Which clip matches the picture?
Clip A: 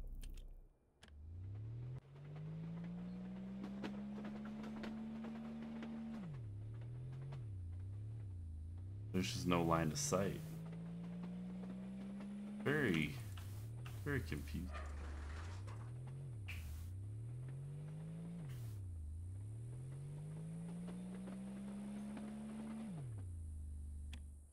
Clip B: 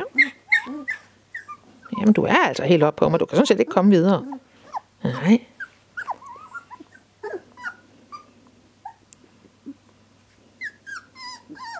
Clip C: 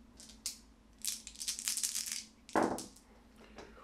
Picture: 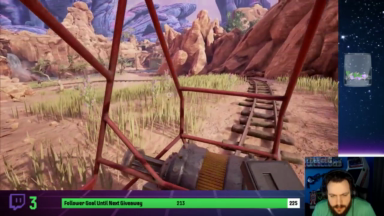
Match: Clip A